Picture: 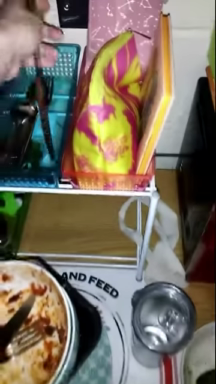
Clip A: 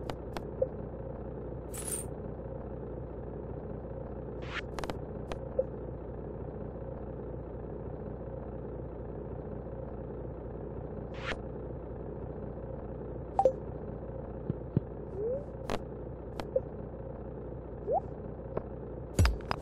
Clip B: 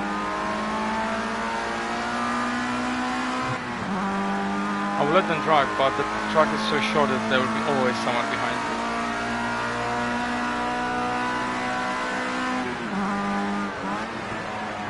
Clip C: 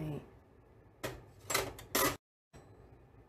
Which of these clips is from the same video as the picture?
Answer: C